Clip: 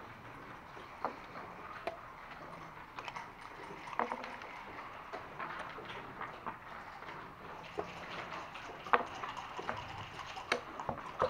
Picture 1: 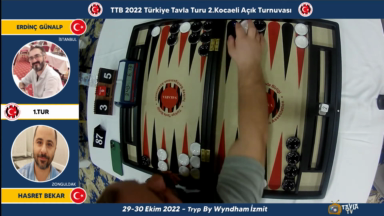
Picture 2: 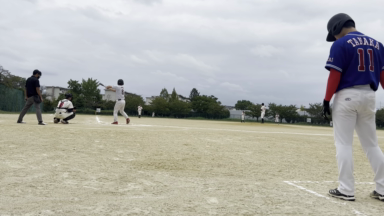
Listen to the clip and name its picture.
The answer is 1